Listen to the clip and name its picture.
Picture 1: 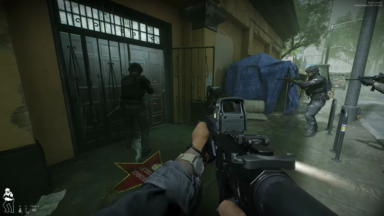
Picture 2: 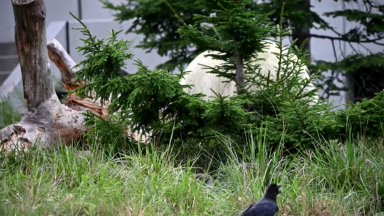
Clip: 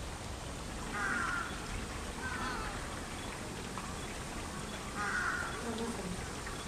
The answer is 2